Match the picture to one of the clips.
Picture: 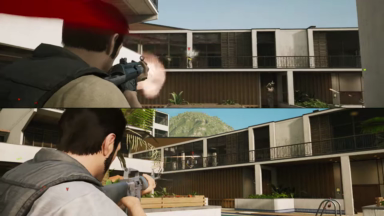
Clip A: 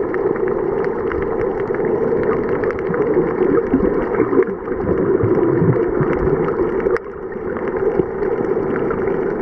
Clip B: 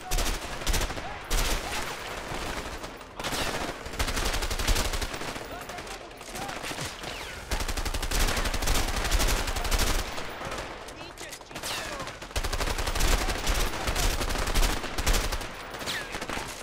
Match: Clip B